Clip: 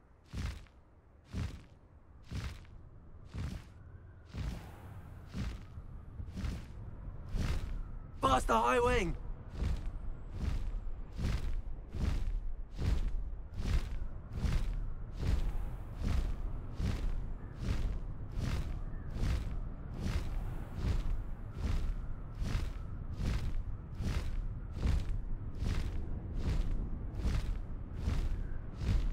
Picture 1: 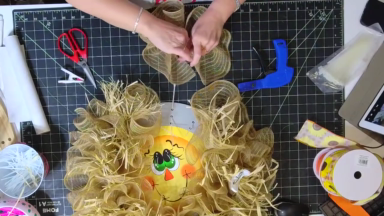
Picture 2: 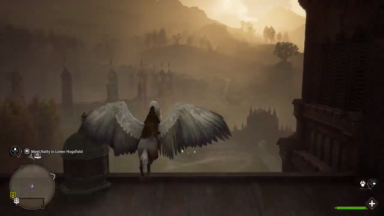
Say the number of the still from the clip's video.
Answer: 2